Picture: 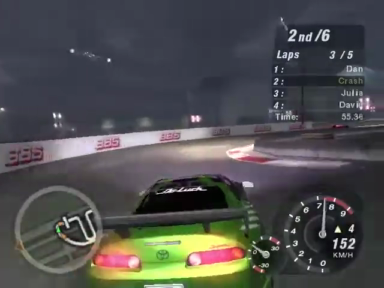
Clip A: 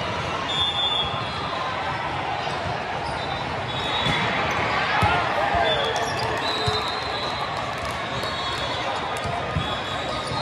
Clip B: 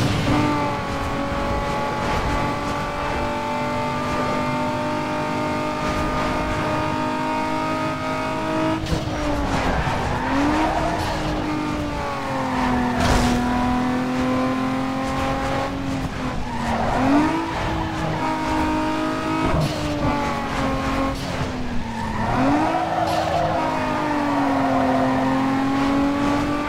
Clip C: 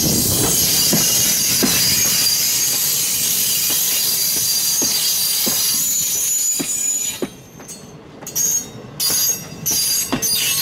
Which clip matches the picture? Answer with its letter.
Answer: B